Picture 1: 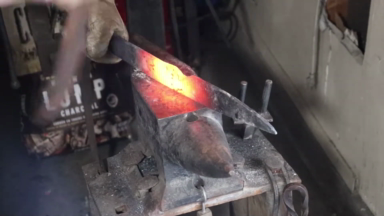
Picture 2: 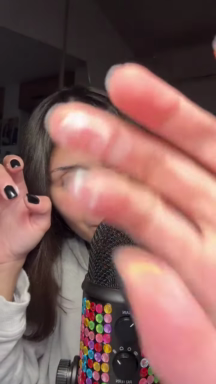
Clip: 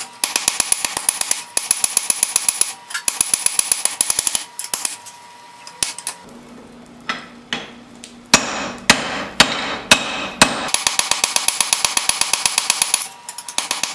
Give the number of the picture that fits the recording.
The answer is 1